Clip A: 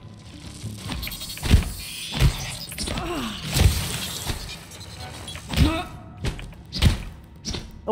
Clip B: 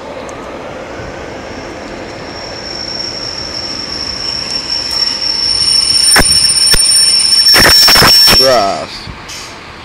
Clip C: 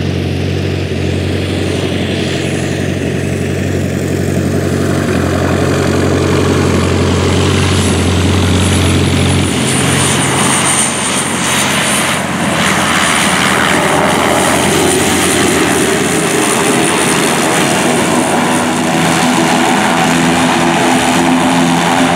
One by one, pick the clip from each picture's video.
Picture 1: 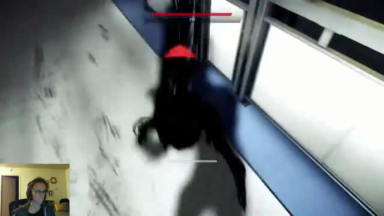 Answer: A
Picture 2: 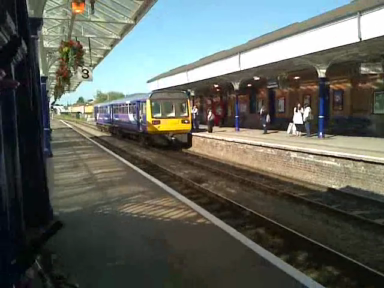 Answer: B